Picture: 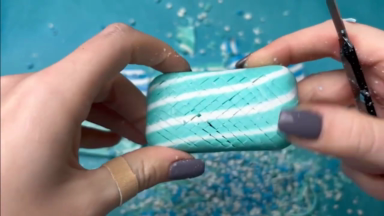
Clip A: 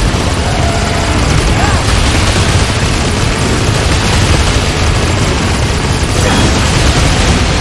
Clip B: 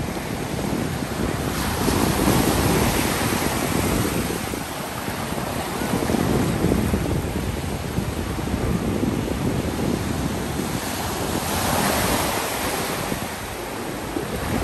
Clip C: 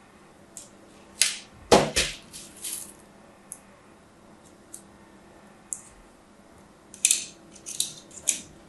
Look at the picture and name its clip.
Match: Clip C